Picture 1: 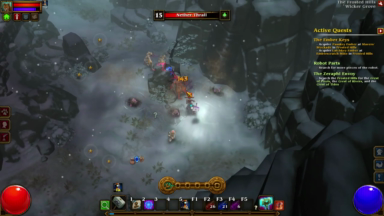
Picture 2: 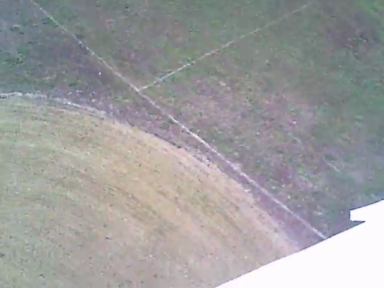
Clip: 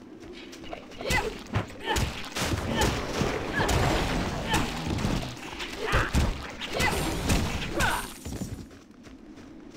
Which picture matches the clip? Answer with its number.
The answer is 1